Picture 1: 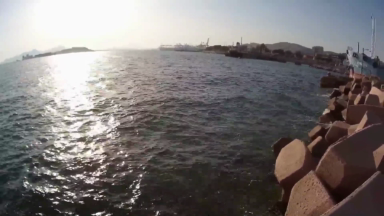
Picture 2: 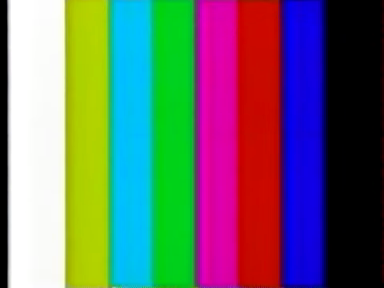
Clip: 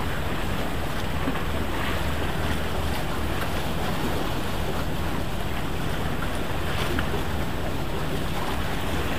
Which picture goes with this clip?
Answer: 1